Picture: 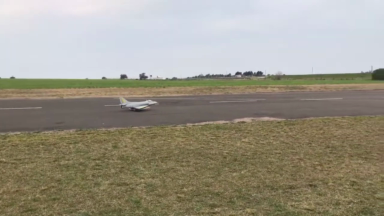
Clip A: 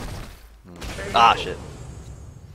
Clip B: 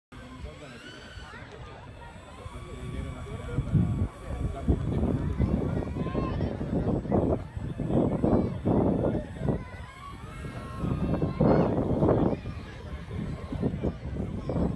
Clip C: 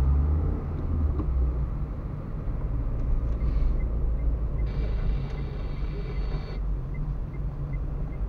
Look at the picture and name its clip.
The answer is B